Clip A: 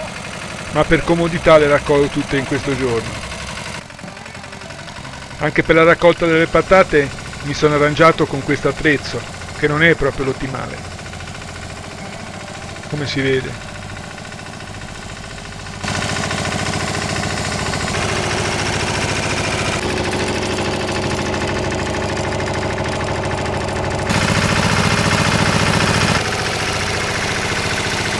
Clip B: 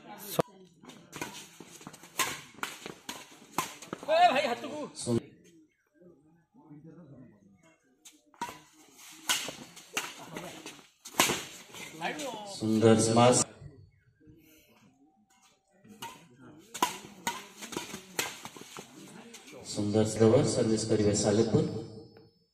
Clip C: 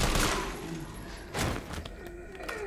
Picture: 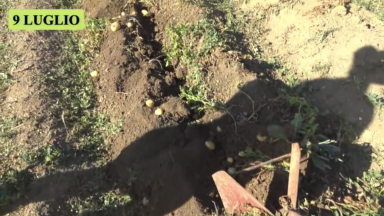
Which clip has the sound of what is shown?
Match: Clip A